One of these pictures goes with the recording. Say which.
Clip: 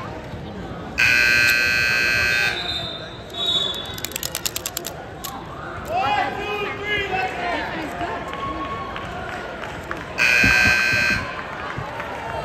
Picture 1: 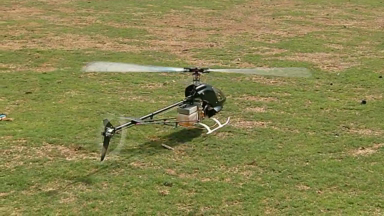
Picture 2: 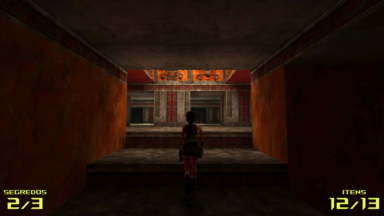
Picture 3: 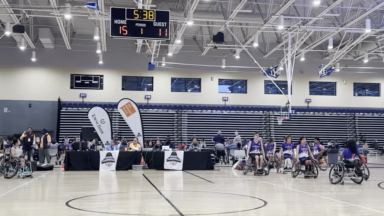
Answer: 3